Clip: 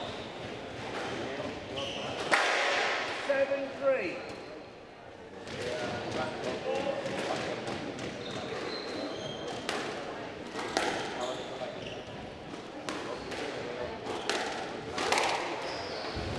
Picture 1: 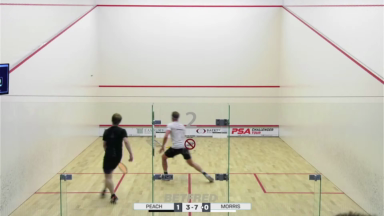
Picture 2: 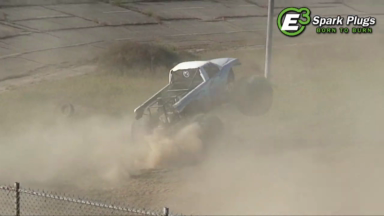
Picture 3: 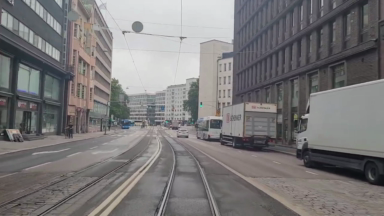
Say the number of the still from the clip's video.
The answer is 1